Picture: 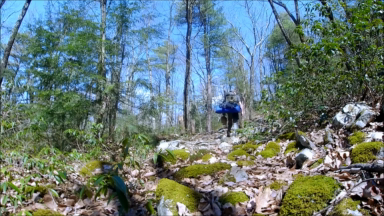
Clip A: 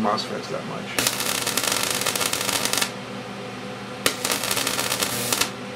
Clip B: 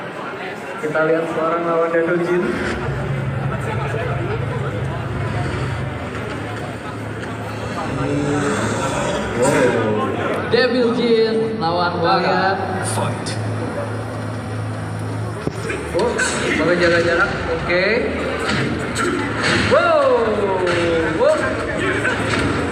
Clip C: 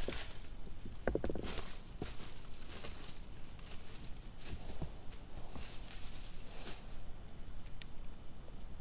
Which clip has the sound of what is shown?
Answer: C